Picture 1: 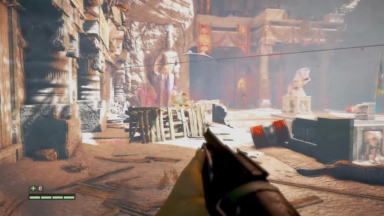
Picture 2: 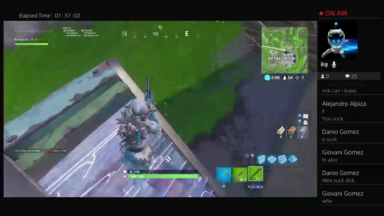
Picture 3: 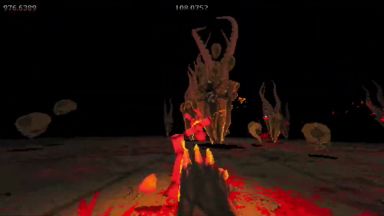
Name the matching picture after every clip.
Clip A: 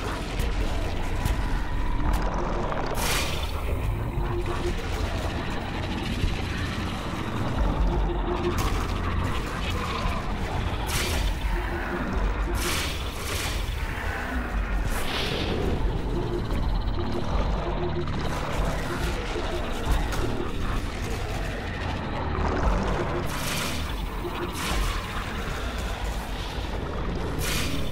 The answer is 3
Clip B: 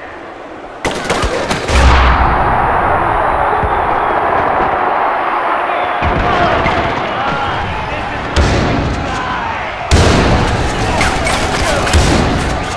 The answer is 1